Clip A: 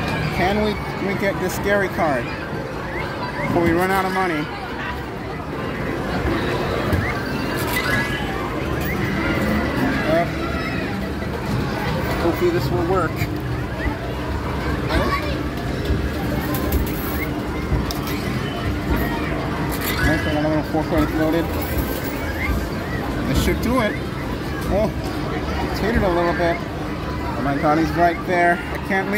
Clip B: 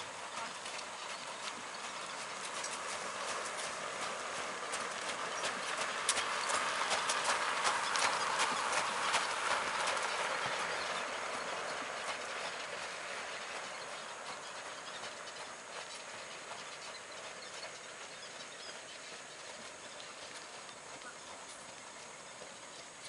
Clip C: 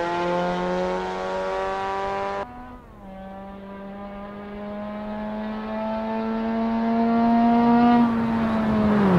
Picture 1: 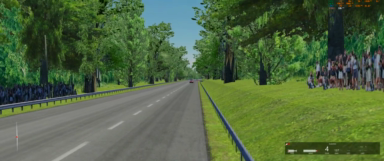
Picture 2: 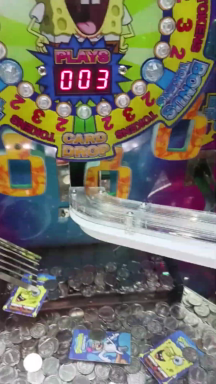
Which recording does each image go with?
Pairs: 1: C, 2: A